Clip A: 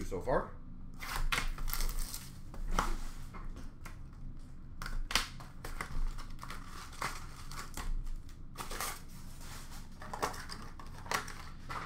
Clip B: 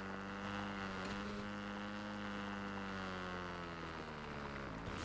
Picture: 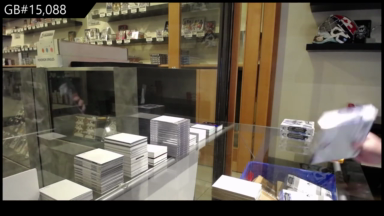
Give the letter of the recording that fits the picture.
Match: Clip A